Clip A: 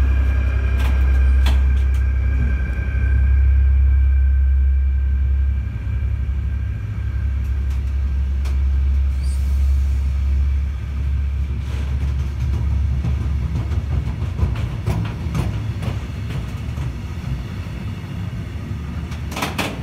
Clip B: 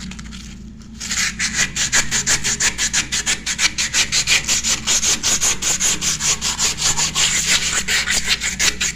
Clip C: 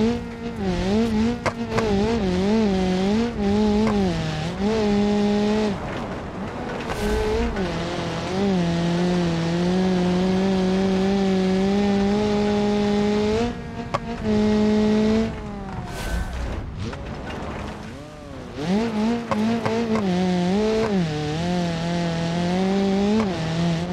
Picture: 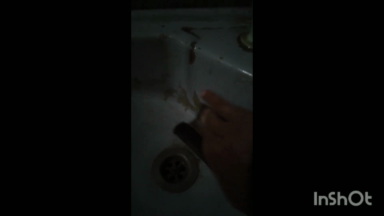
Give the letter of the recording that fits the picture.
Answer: B